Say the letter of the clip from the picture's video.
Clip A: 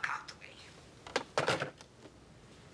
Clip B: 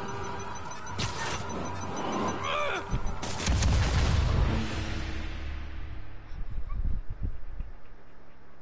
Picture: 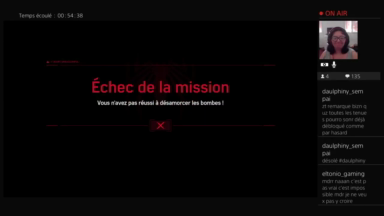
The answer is B